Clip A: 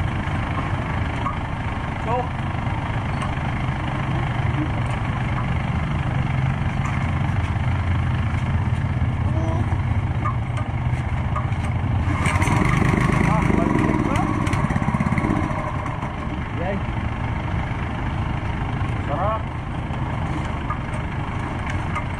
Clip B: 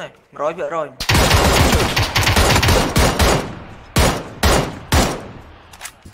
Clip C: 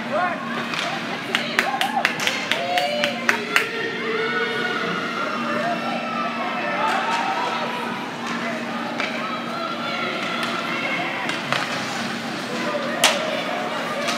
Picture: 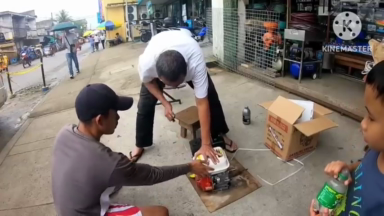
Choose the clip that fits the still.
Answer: A